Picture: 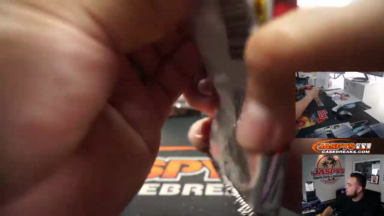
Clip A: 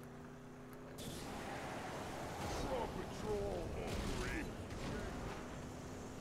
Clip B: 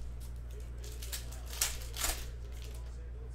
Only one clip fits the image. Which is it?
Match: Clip B